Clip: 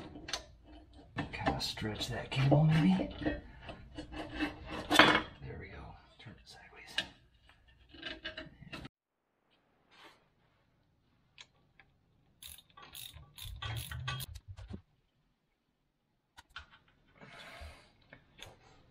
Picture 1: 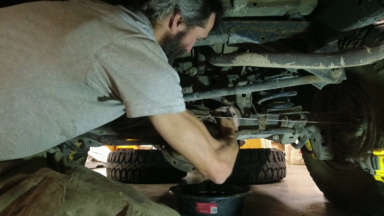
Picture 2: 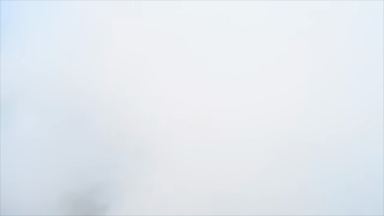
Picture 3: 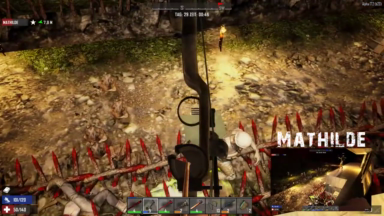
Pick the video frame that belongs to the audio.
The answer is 1